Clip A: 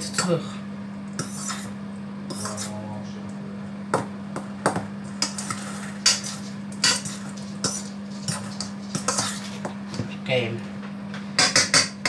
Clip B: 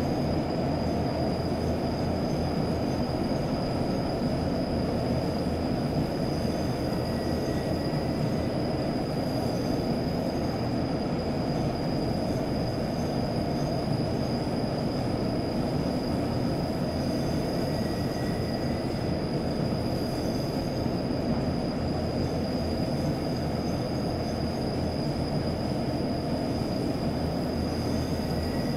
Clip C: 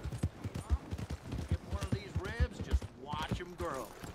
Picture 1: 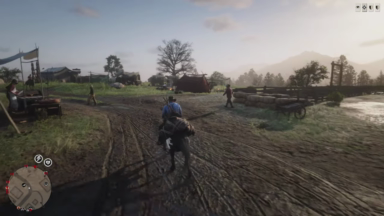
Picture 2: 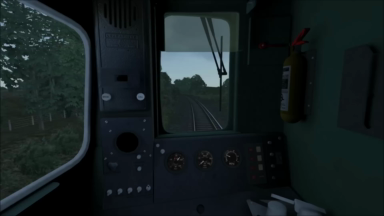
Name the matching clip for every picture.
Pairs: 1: C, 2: B